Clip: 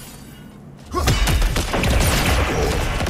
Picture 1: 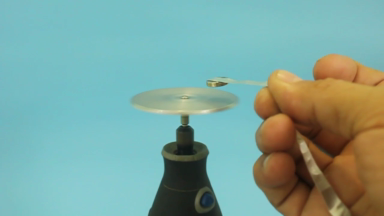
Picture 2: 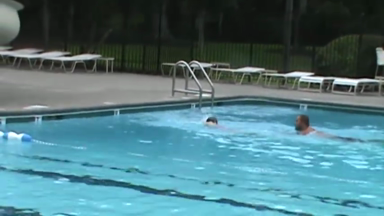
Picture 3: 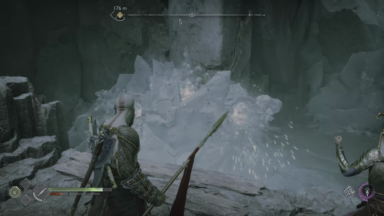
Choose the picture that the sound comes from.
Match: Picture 3